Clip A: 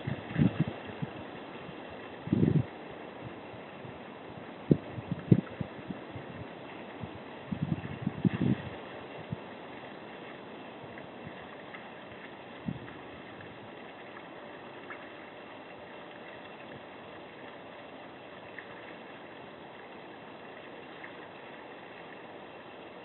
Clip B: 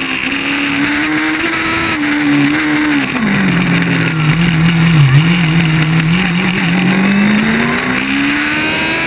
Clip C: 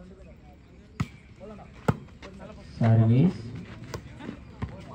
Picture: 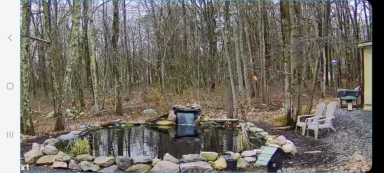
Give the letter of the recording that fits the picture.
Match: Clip A